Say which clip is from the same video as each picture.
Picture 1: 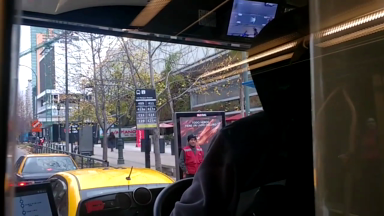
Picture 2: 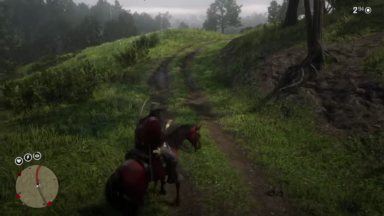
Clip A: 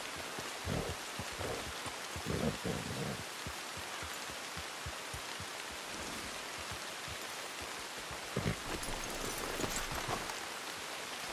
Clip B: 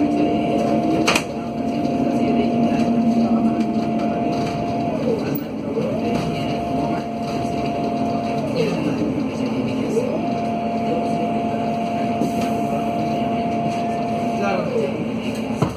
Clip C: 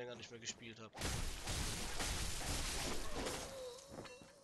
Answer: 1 B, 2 A